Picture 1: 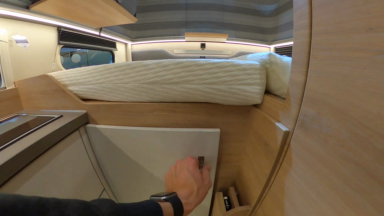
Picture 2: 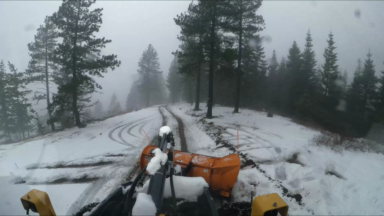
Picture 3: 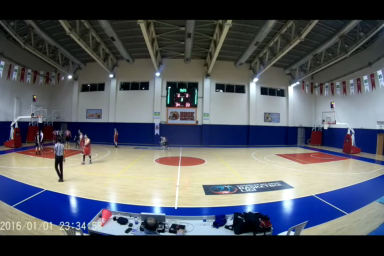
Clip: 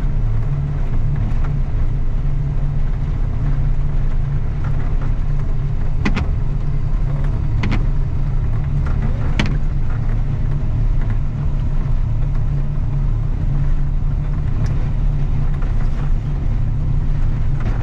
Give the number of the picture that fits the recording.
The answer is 2